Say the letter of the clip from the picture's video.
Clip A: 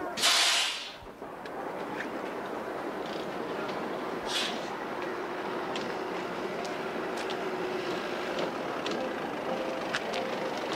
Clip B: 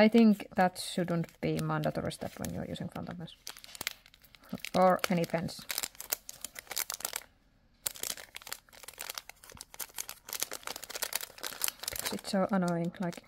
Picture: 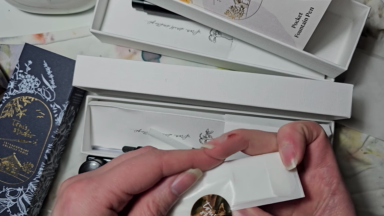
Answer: B